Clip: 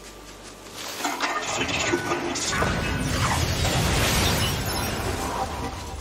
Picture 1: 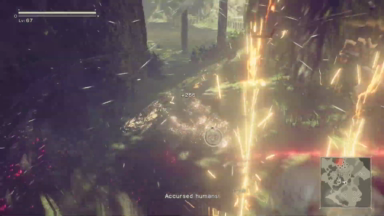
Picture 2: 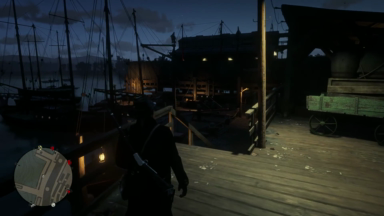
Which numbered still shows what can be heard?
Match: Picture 1